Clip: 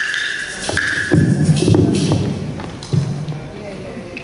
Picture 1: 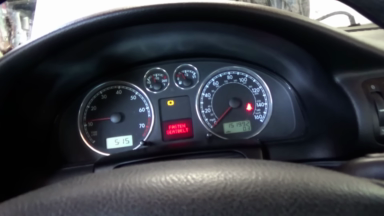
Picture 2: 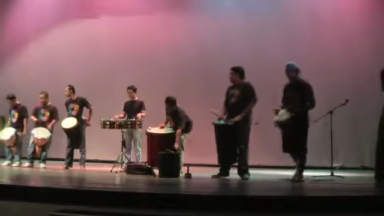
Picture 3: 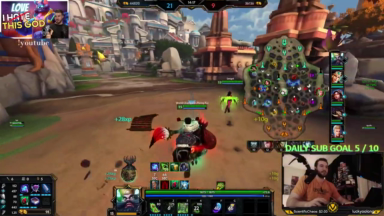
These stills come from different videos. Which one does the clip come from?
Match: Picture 2